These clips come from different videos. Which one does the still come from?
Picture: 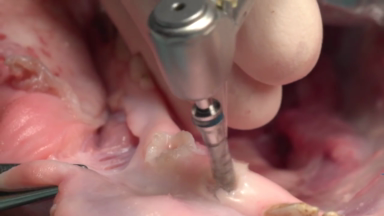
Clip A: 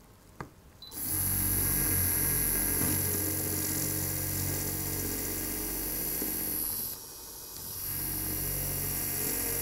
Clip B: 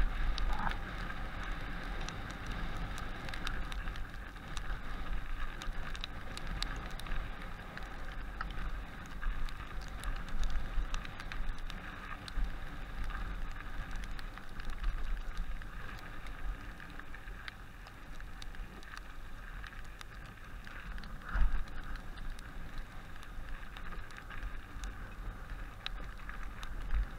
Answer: A